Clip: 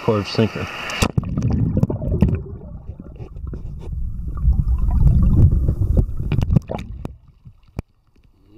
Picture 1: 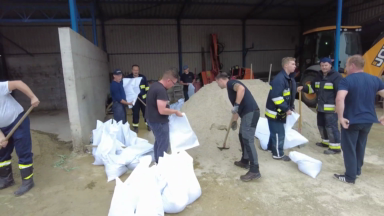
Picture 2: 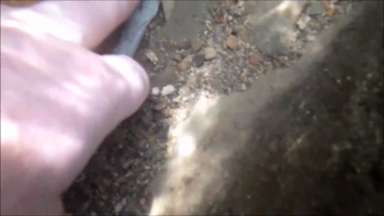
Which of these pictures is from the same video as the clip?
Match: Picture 2